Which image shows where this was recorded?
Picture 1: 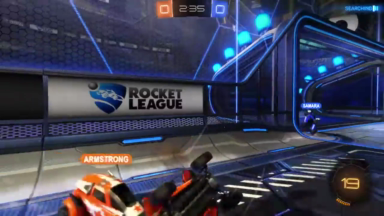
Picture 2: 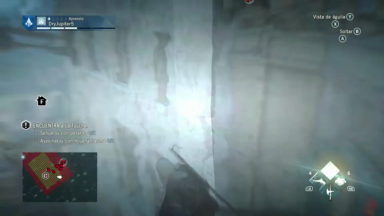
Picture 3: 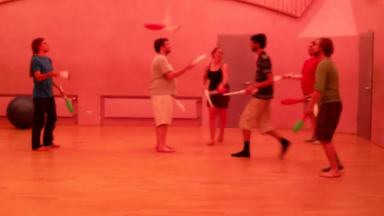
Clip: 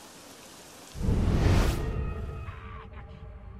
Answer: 2